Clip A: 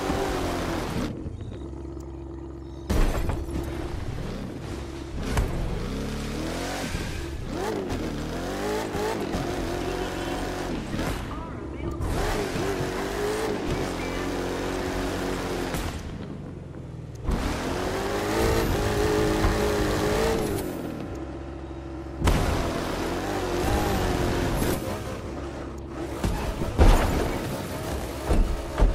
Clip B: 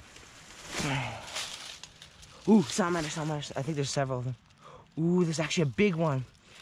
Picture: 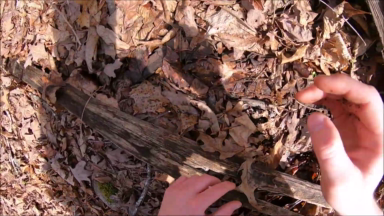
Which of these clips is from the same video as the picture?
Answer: B